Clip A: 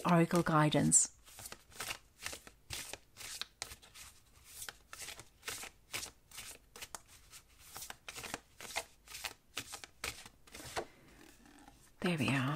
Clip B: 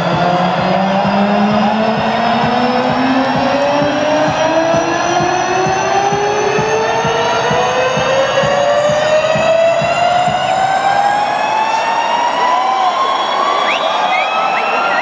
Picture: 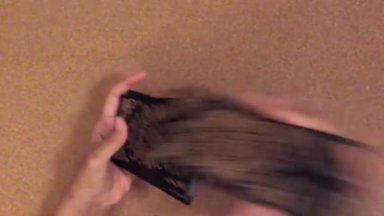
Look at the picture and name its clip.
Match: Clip A